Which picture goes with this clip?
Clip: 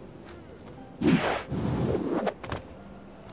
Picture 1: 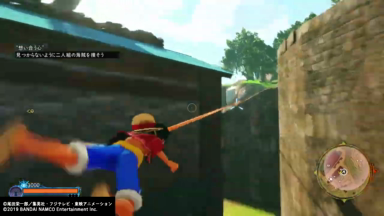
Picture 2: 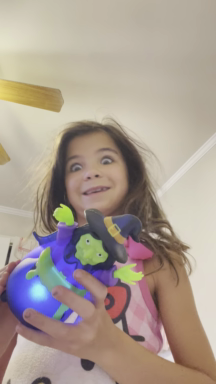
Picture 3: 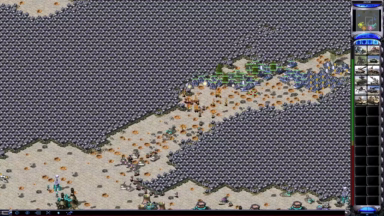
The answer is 1